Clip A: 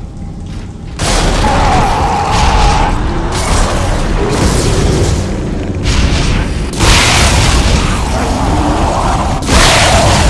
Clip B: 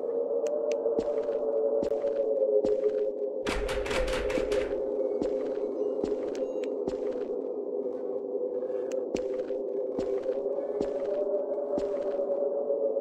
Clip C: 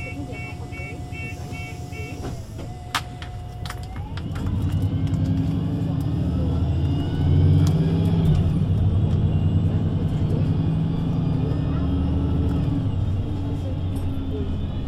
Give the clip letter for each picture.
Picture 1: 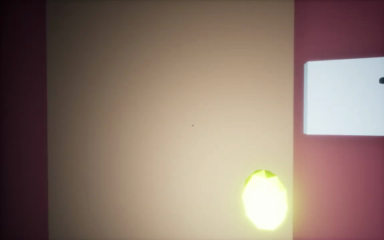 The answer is B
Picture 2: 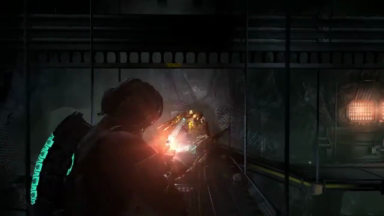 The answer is A